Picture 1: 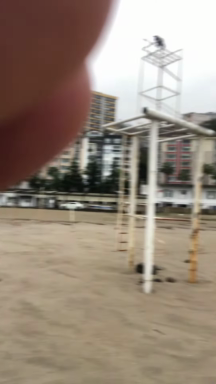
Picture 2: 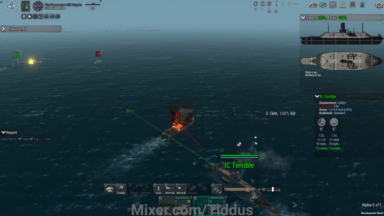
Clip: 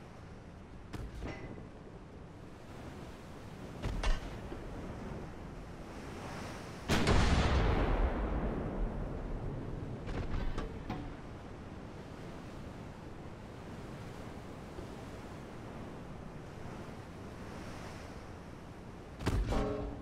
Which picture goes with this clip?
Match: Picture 2